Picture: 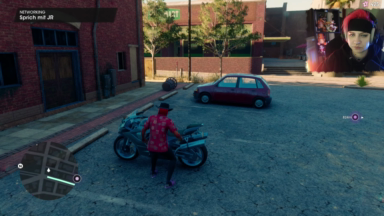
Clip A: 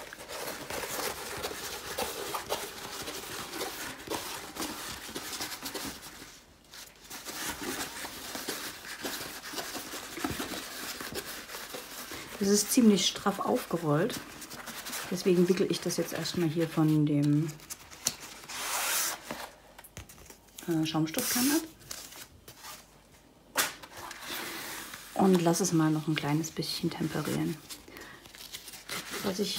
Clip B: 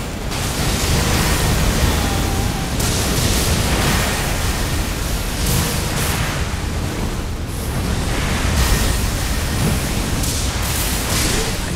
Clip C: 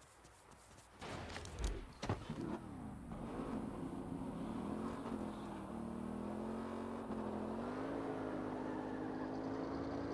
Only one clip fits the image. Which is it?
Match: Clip C